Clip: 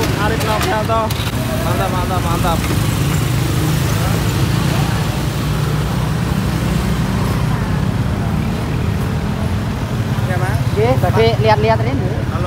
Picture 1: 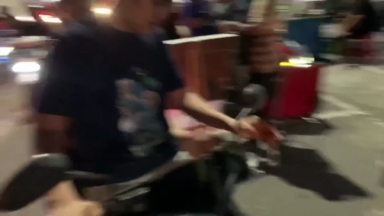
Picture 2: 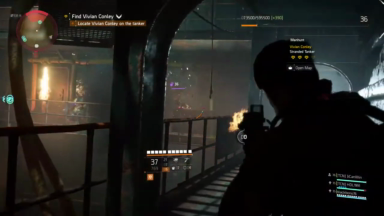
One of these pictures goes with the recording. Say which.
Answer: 1